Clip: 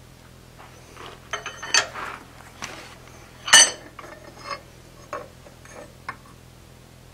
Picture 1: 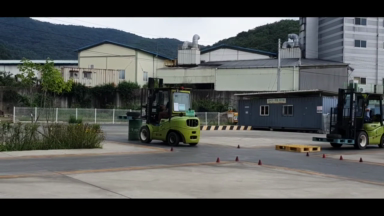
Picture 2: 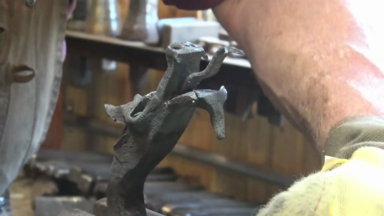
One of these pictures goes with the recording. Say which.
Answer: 2